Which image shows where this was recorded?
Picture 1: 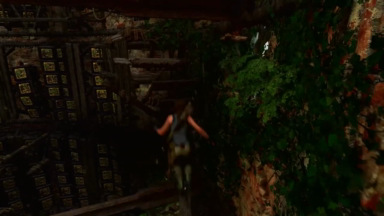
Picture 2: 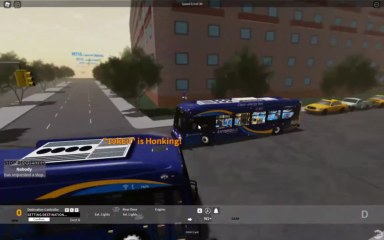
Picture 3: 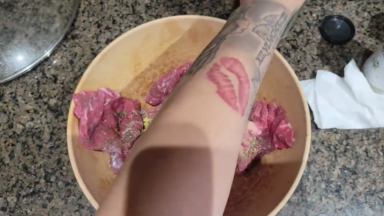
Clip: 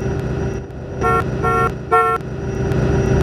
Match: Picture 2